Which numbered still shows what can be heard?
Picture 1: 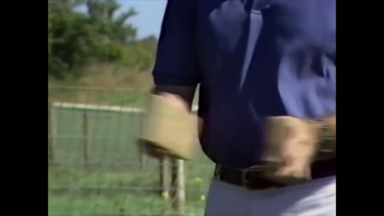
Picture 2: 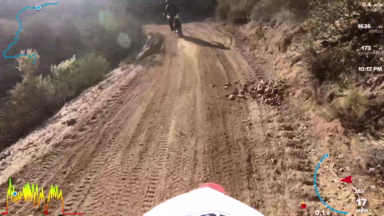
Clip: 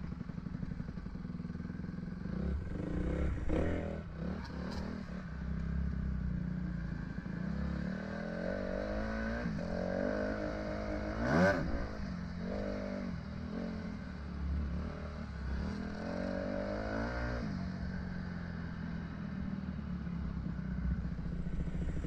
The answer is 2